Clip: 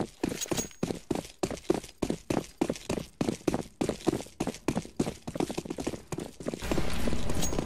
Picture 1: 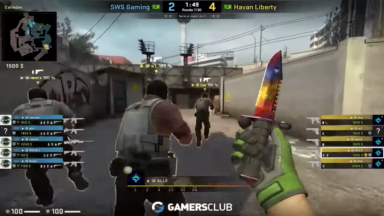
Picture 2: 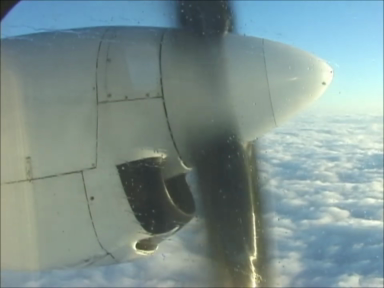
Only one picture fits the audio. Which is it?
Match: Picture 1